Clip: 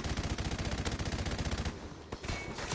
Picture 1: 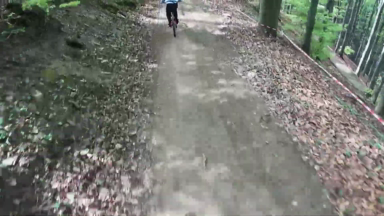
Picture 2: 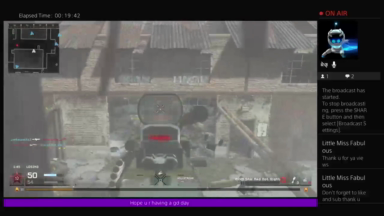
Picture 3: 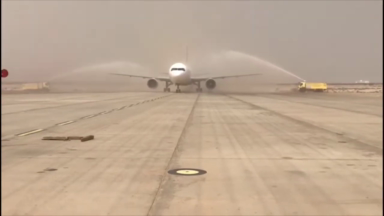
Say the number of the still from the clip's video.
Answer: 2